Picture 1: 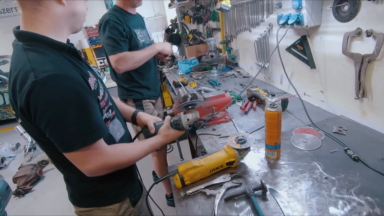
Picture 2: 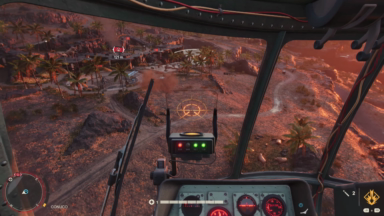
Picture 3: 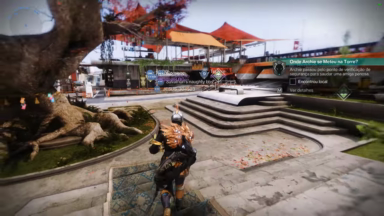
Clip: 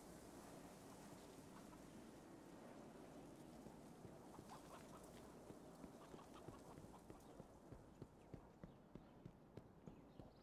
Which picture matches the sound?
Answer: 3